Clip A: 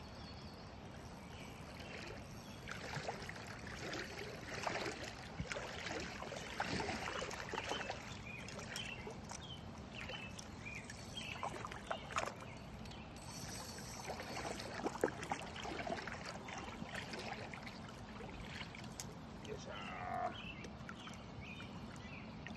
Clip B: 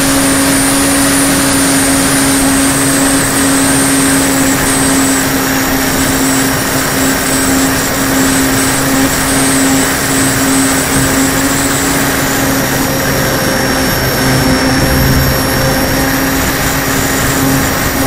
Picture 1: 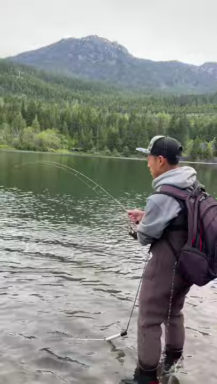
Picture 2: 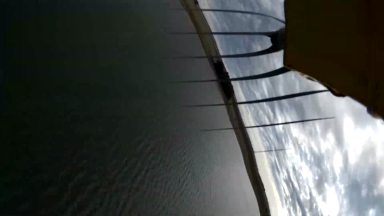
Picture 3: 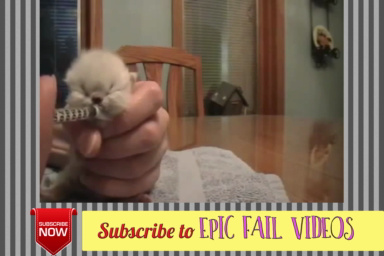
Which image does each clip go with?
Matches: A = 1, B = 2